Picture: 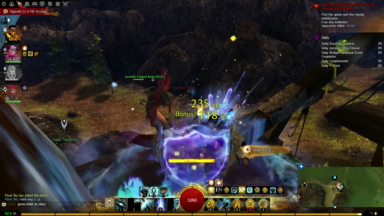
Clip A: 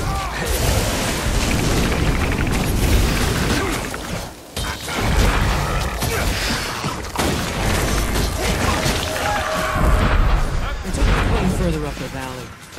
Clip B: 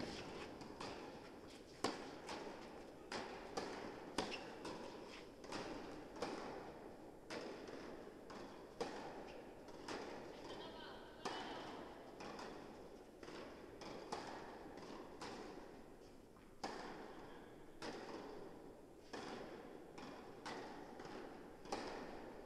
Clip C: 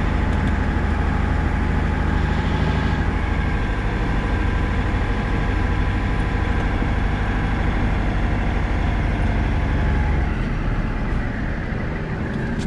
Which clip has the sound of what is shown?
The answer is A